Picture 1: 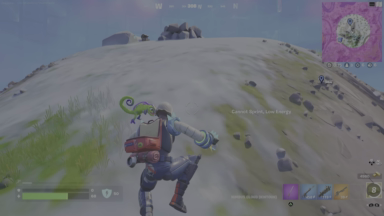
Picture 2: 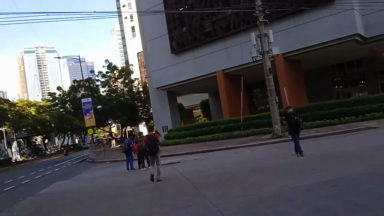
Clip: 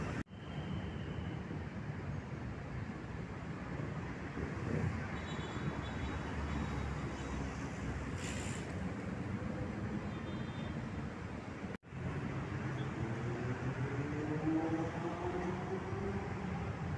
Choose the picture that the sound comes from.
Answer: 2